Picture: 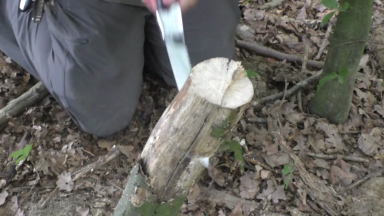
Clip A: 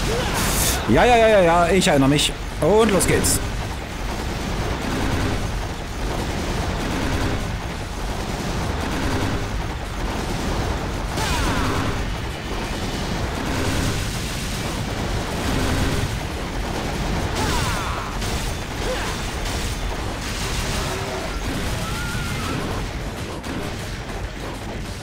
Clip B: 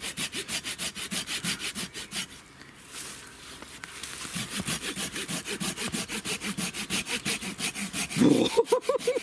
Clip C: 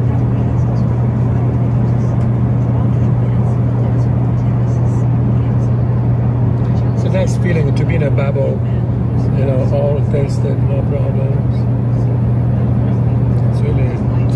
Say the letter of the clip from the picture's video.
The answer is B